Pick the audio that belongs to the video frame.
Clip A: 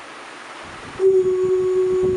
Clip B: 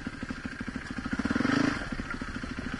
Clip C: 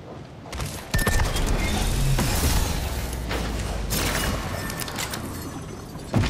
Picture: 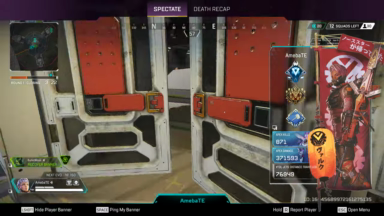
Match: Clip C